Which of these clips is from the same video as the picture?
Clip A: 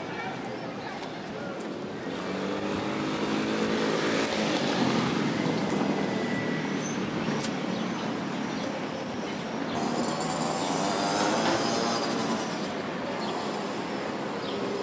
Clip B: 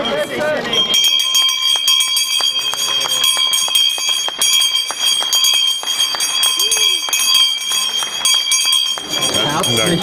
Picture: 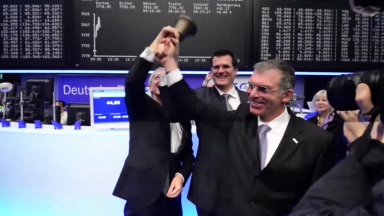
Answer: B